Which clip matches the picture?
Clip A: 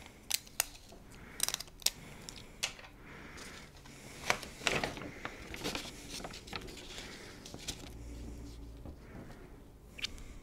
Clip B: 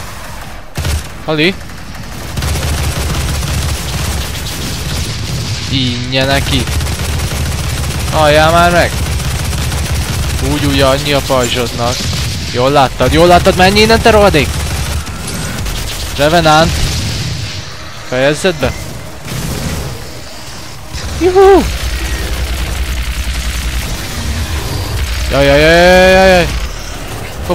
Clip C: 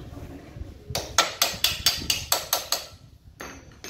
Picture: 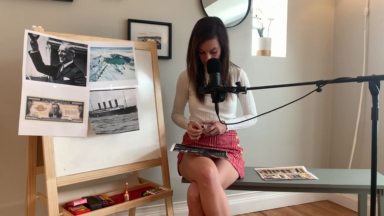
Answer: A